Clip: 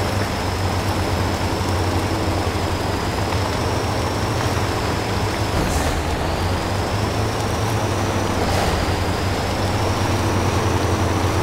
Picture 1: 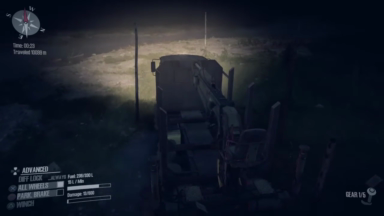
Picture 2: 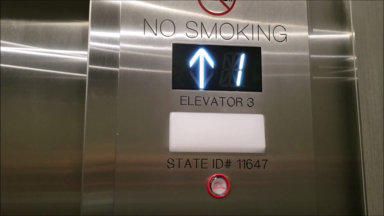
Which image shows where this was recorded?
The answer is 1